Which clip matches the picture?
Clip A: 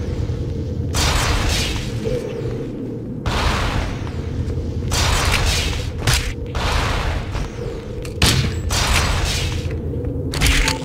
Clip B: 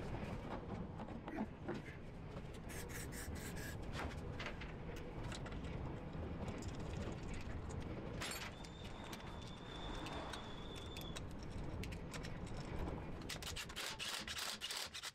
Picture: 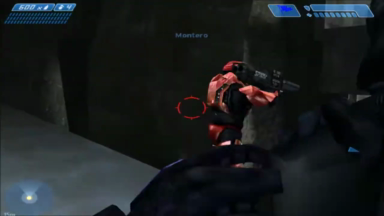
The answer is A